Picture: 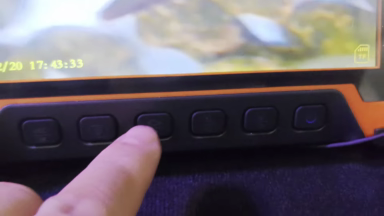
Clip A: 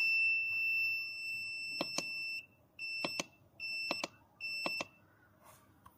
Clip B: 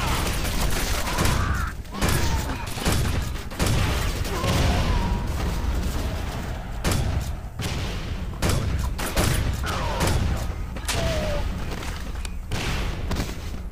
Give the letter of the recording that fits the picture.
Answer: A